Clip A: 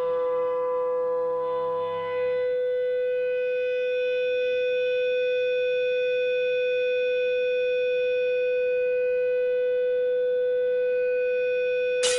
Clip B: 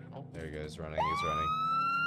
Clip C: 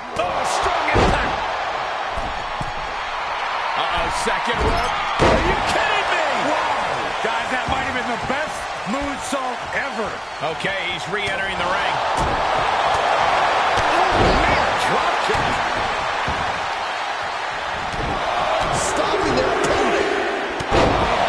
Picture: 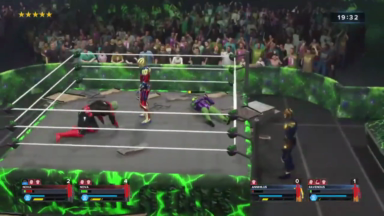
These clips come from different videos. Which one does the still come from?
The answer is C